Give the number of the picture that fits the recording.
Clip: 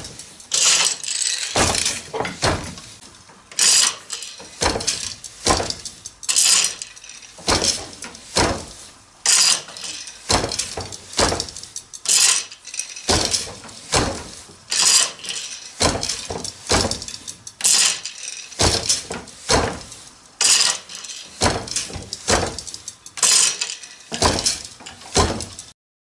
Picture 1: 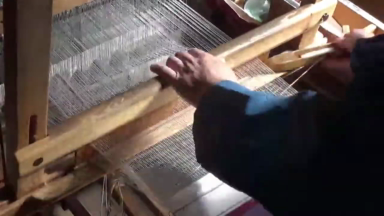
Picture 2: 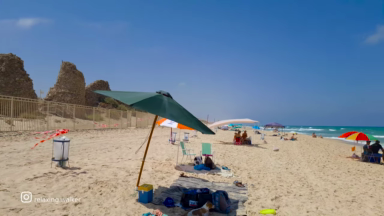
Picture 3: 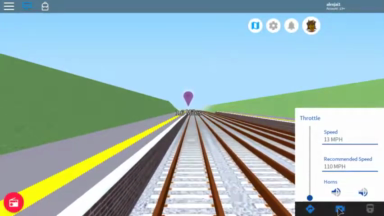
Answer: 1